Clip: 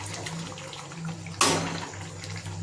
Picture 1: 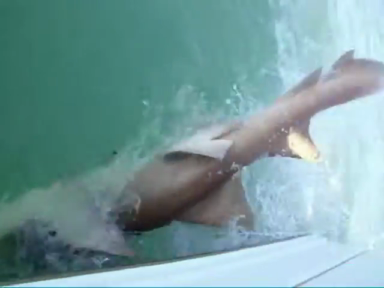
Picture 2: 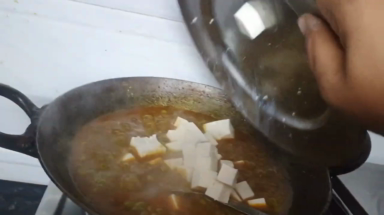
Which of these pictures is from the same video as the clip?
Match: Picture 2